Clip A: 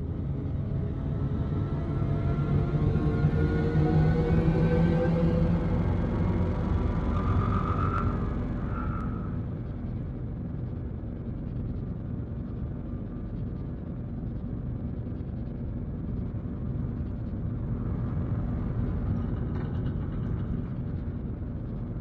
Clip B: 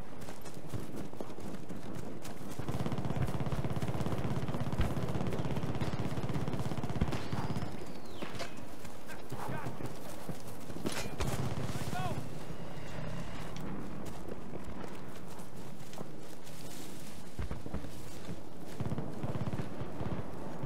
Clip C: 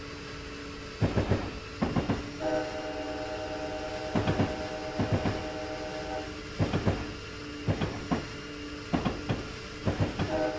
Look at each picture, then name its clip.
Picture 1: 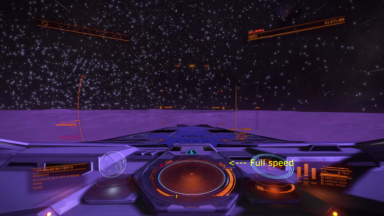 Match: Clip A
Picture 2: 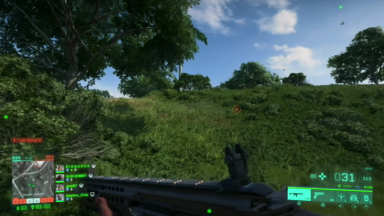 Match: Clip B